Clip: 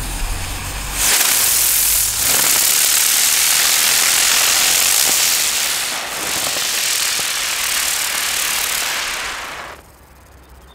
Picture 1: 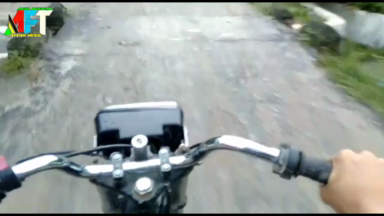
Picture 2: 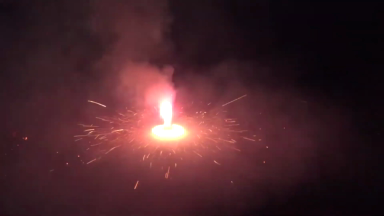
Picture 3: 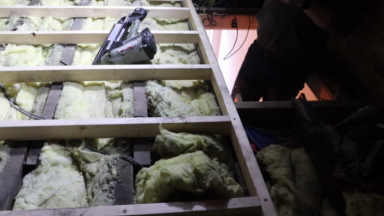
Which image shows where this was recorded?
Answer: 2